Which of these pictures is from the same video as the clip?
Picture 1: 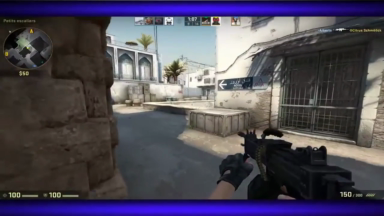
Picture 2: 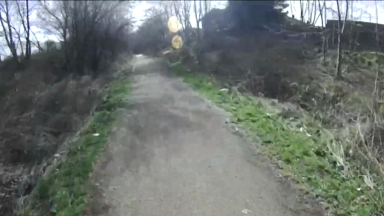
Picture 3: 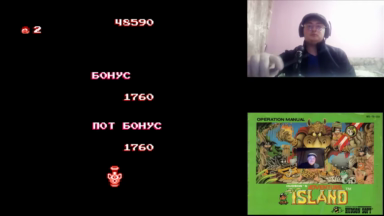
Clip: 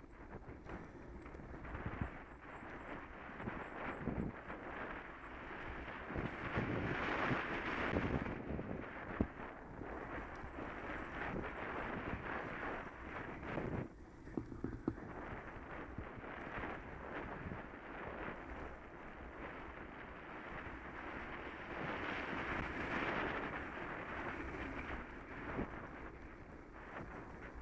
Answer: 2